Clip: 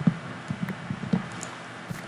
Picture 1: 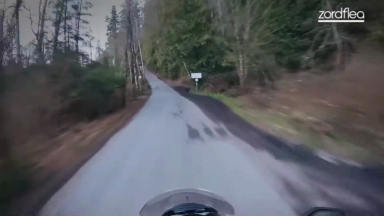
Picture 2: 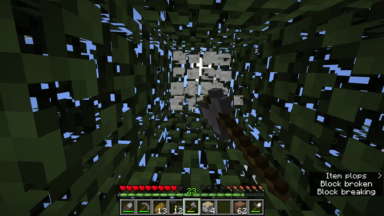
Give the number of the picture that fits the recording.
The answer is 2